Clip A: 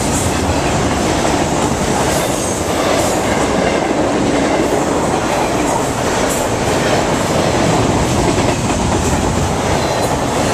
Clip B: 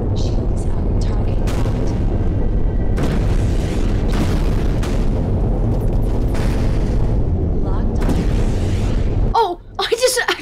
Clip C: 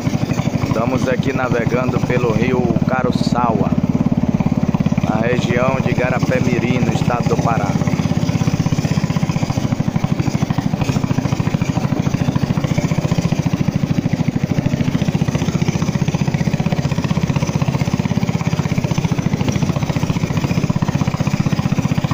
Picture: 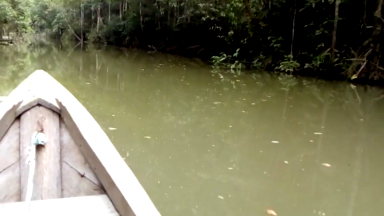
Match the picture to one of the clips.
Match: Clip C